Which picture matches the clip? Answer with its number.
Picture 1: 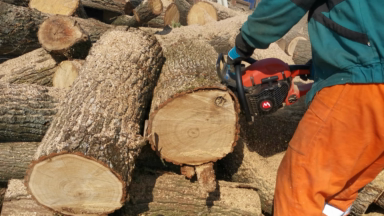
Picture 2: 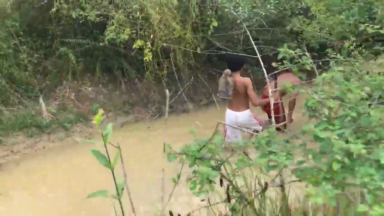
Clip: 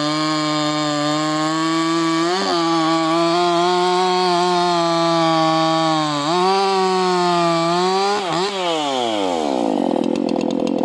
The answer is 1